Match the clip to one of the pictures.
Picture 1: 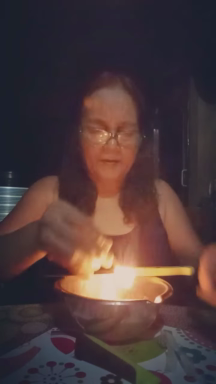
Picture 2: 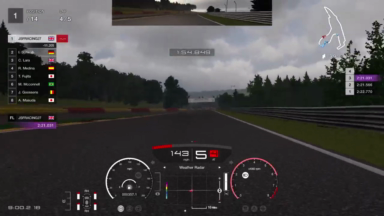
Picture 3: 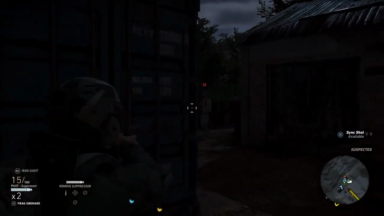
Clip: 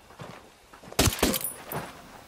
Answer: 3